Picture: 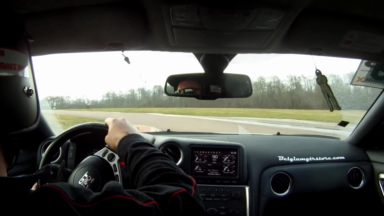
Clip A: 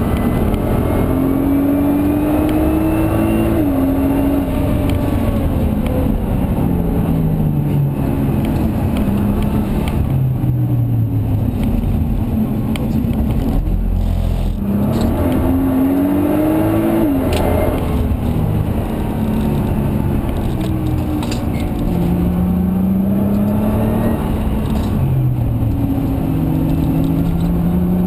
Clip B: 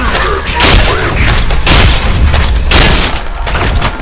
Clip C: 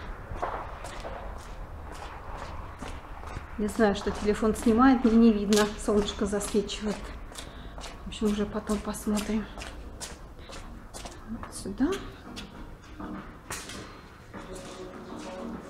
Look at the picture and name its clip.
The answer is A